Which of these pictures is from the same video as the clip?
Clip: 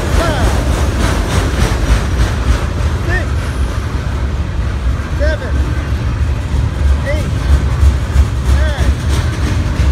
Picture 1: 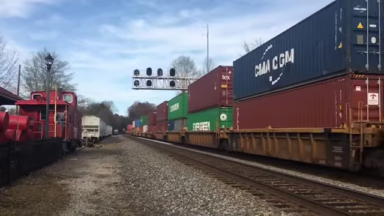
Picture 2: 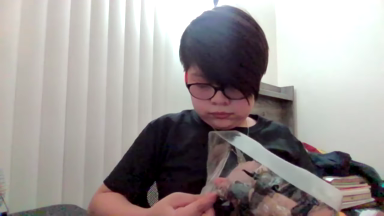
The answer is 1